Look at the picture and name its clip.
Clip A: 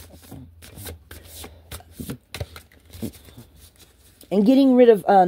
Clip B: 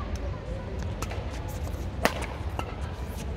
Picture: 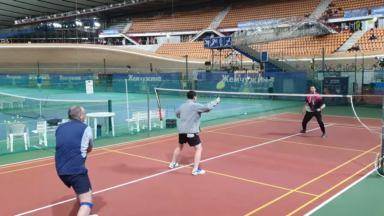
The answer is B